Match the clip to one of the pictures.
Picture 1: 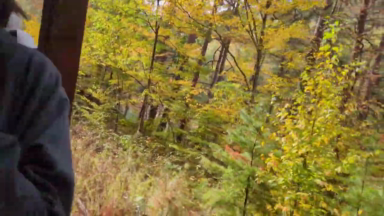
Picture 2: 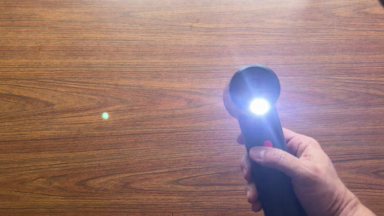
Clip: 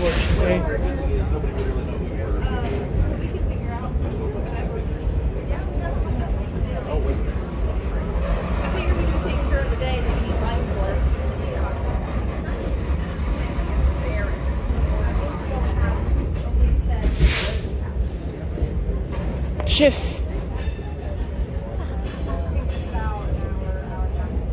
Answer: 1